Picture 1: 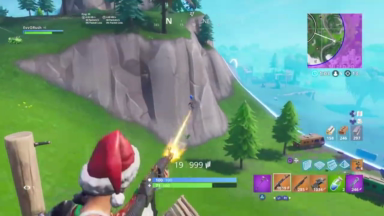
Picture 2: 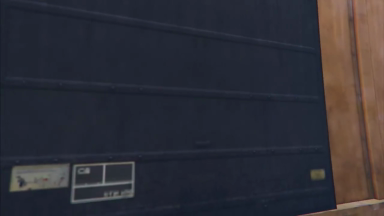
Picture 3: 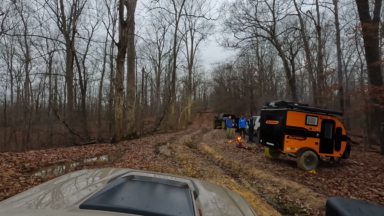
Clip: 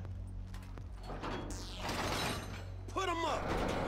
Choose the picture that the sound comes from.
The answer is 2